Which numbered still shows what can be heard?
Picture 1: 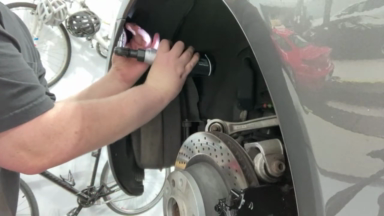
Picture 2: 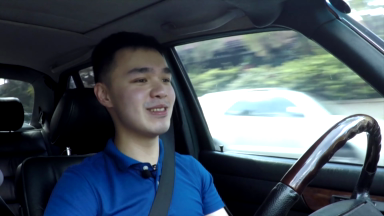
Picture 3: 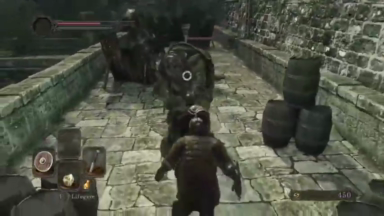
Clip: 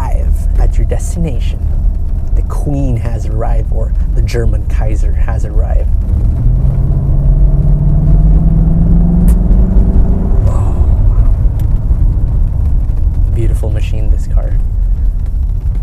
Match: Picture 2